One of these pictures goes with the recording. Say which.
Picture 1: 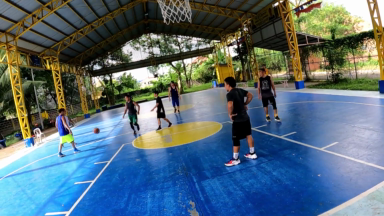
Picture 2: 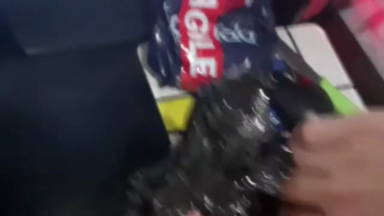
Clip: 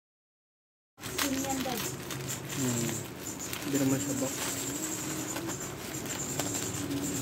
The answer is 2